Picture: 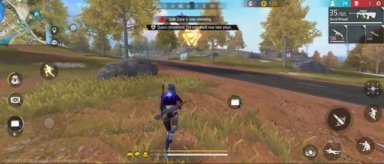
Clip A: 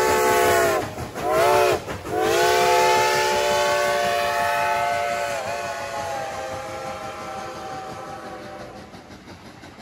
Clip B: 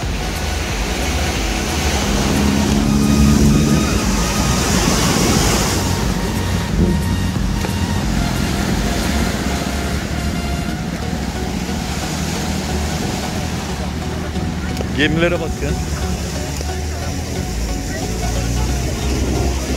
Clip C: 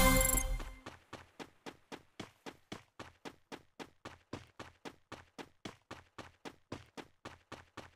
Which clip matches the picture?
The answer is C